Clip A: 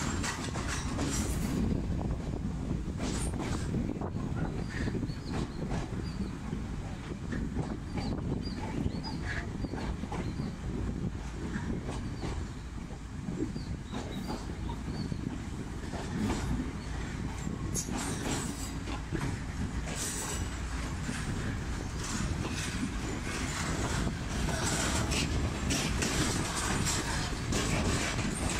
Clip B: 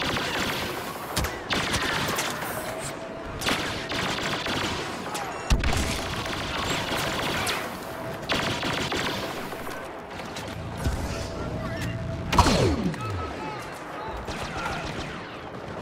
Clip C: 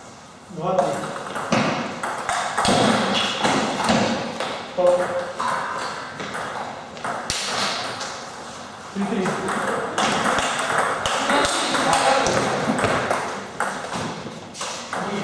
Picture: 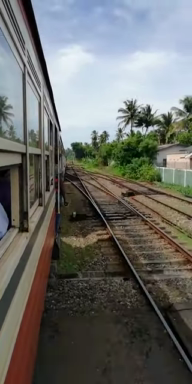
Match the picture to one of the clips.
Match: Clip A